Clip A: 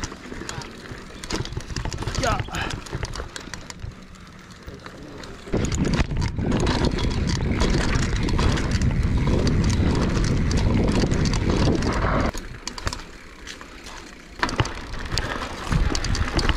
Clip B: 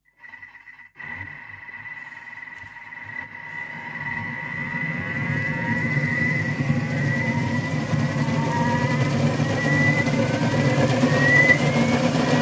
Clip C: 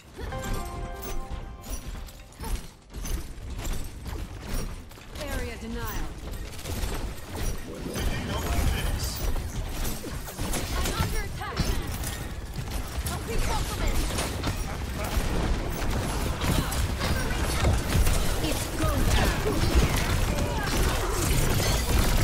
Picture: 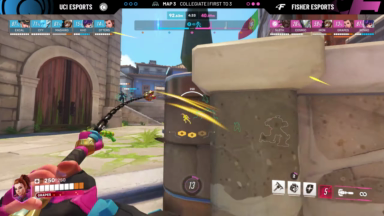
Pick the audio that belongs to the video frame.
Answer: C